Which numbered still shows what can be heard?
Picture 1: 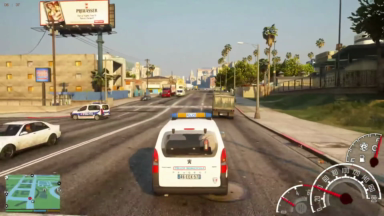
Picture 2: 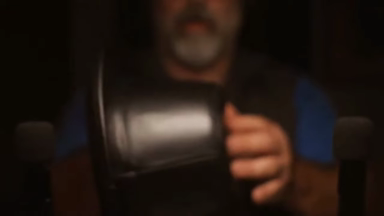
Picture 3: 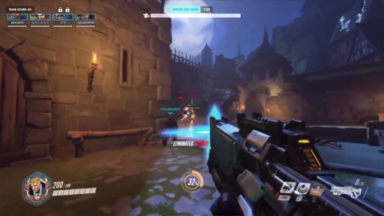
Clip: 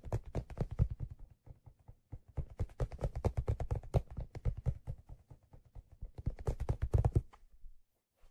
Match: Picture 2